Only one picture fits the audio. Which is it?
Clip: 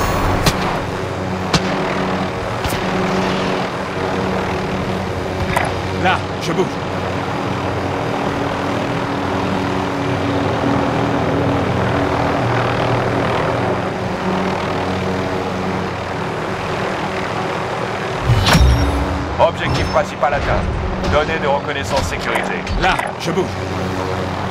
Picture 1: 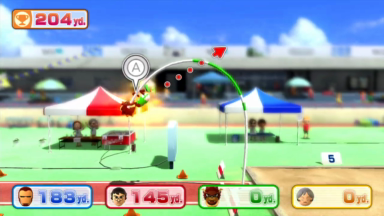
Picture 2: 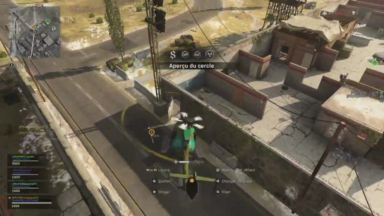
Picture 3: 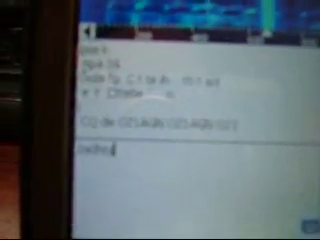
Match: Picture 2